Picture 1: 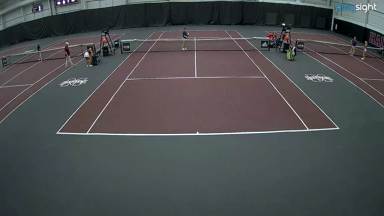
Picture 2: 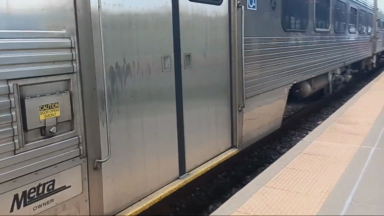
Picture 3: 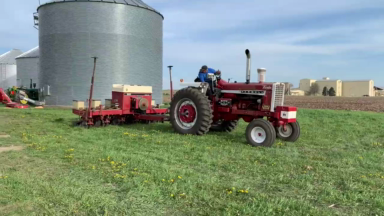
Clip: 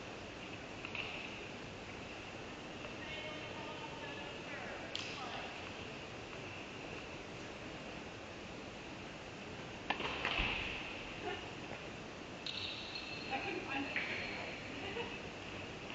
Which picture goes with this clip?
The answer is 1